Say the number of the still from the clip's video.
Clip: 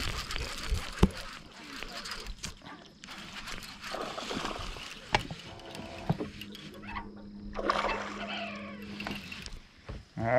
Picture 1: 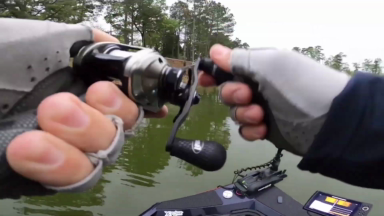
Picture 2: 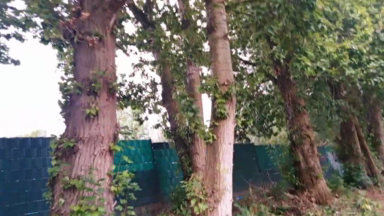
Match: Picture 1